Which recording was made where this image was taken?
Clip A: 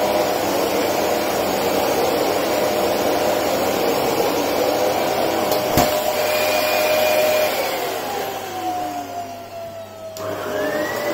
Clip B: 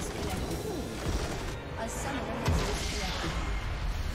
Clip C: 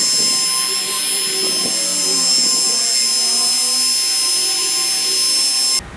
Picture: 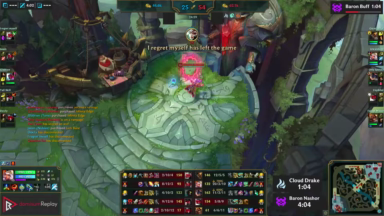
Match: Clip B